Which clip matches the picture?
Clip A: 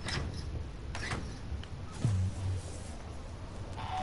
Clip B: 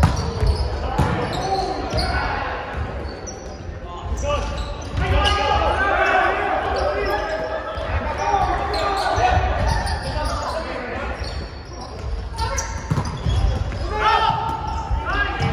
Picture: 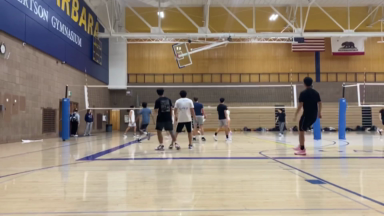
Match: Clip B